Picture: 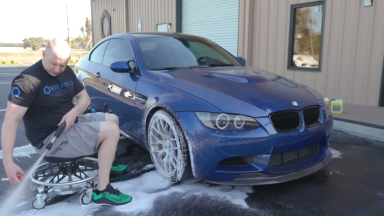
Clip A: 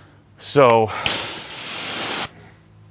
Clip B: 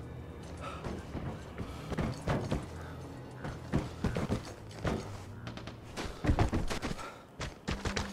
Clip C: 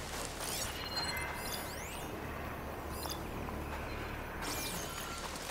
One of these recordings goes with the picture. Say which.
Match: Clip A